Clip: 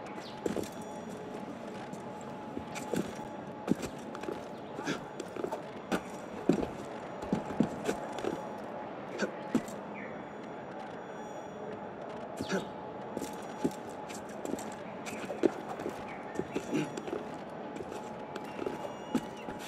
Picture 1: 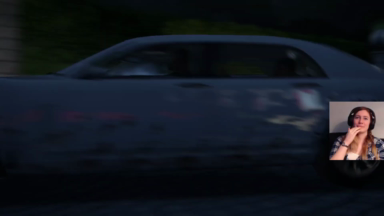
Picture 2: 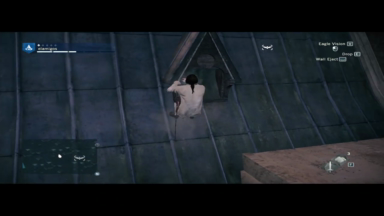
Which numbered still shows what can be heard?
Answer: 2